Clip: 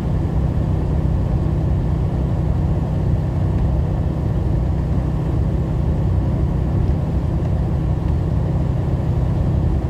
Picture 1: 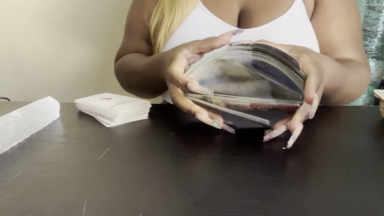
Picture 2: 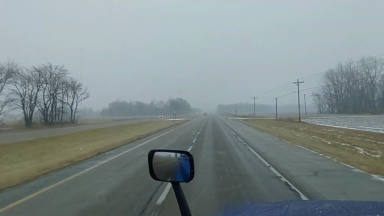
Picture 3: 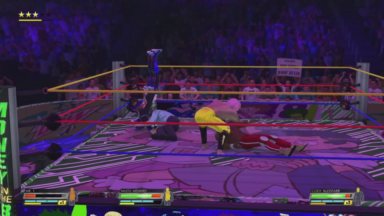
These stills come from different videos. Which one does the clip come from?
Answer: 2